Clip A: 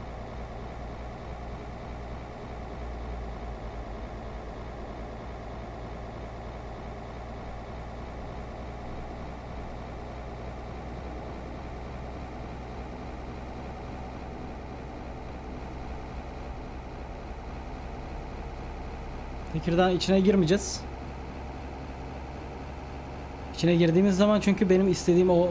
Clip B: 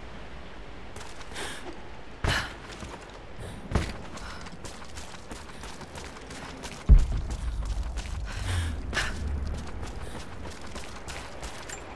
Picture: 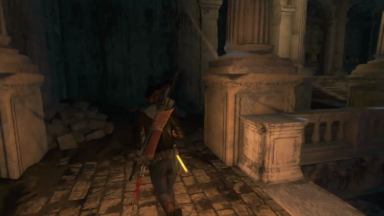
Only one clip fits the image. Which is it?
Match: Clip B